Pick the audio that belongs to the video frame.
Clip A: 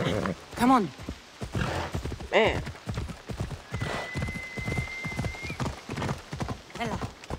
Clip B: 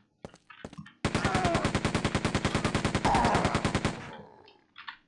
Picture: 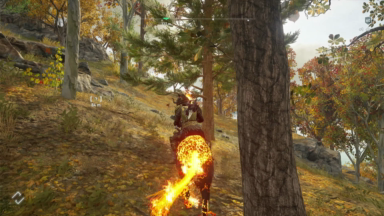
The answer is A